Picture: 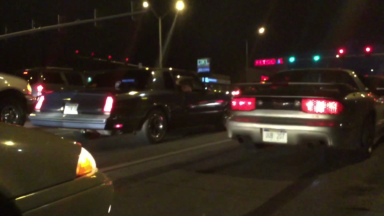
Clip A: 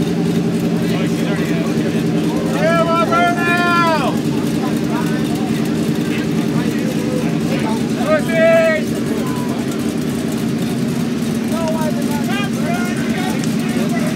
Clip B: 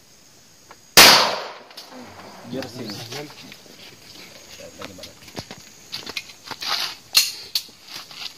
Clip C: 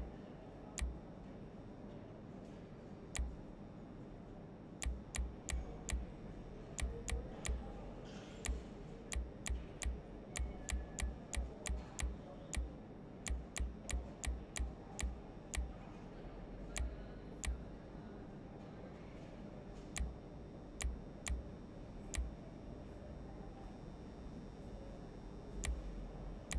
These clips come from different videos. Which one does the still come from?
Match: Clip A